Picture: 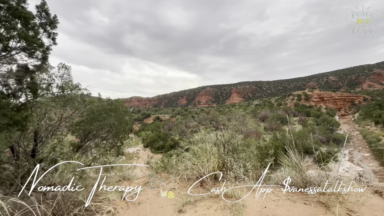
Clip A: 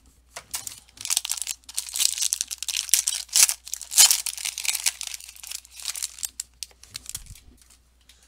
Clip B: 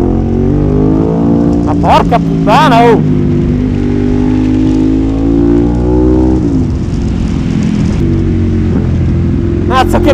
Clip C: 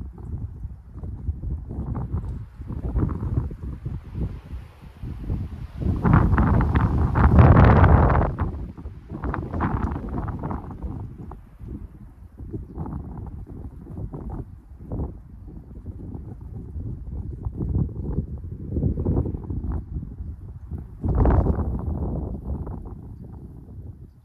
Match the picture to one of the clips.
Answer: C